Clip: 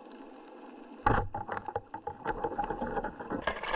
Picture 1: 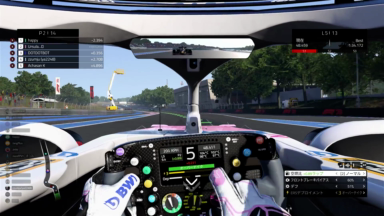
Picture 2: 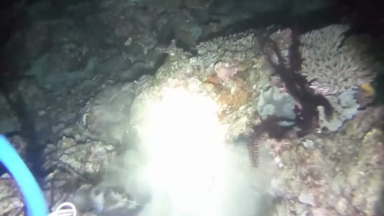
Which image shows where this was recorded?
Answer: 2